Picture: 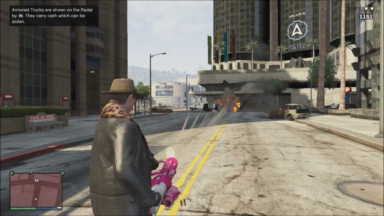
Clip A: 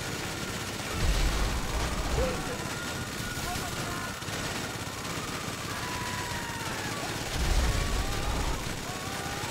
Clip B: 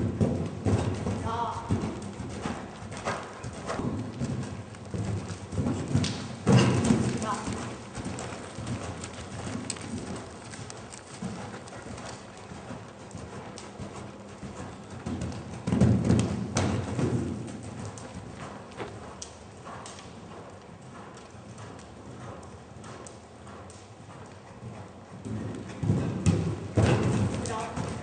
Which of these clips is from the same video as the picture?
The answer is A